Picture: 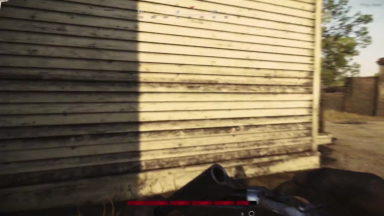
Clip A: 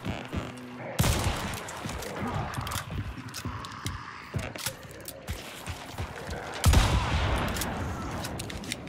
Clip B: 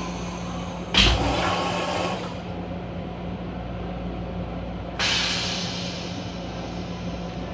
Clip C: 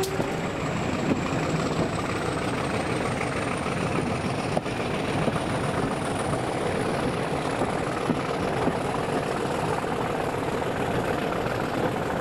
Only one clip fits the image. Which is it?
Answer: A